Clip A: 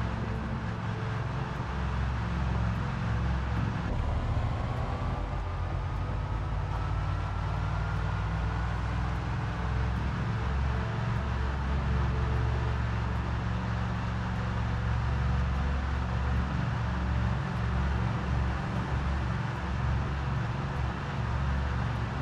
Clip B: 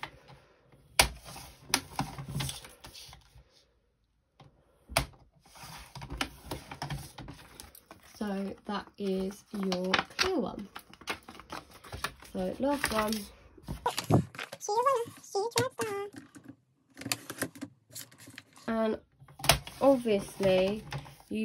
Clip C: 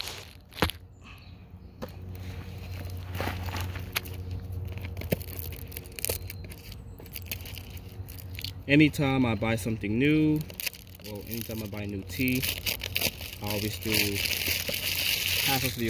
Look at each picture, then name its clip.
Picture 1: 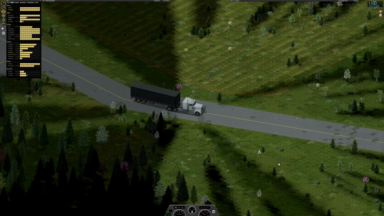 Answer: A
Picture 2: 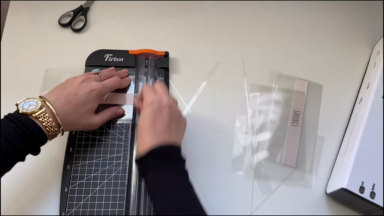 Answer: B